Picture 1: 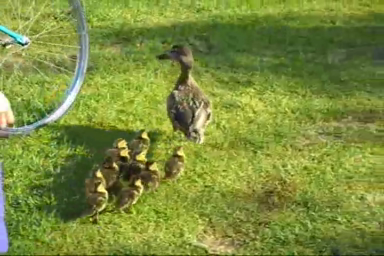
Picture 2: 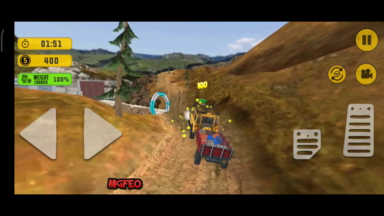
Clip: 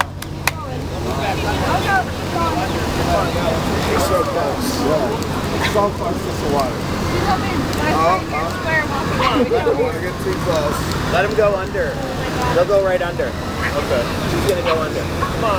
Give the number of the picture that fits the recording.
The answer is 1